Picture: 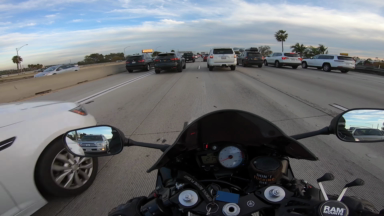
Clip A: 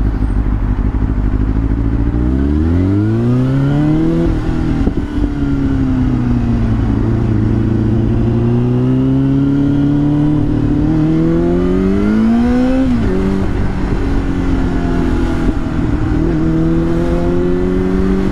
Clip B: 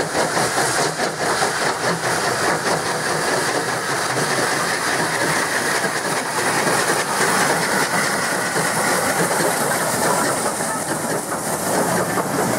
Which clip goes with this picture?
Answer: A